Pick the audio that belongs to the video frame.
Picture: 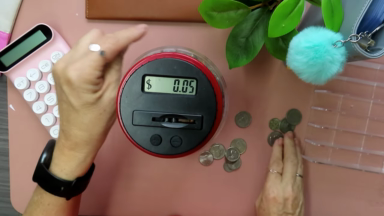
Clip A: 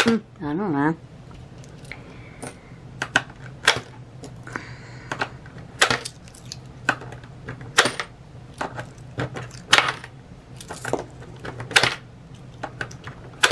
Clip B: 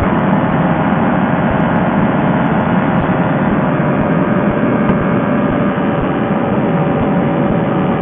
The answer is A